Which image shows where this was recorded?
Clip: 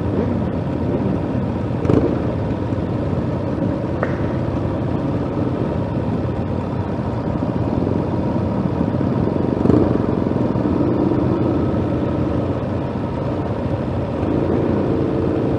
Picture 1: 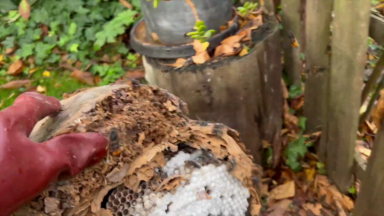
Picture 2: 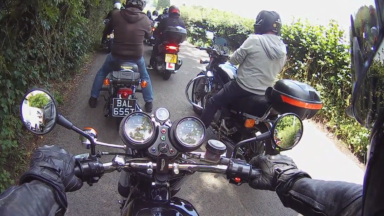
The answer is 2